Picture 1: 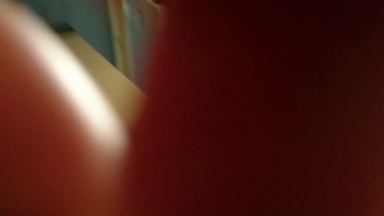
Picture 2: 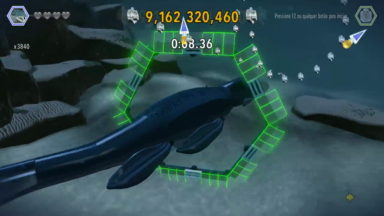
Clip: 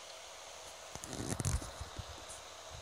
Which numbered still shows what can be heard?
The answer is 1